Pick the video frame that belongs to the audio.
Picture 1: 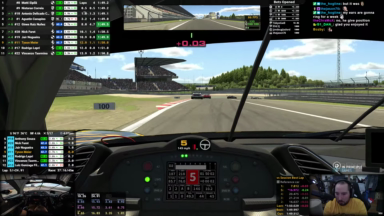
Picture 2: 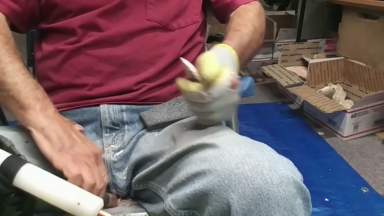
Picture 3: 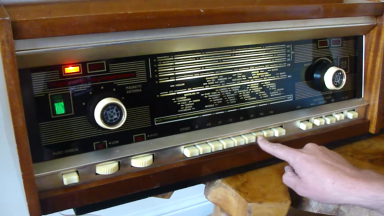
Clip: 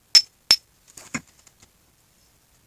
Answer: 2